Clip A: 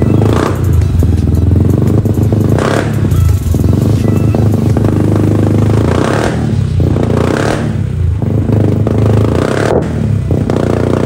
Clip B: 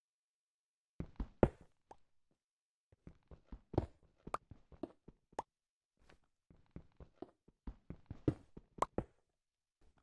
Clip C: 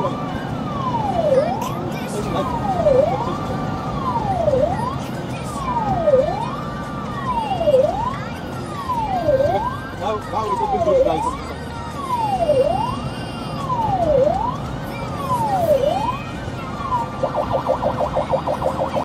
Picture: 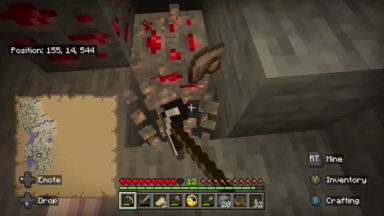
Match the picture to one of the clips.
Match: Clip B